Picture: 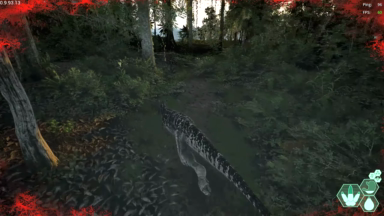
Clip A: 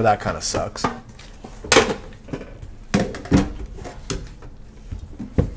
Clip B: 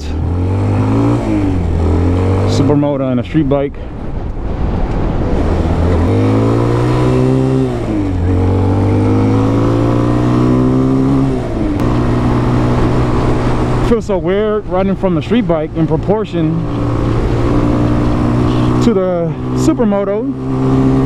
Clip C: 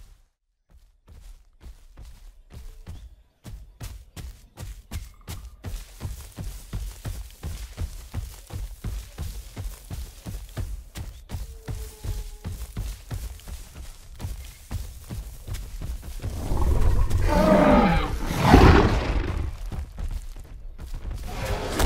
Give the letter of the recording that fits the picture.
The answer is C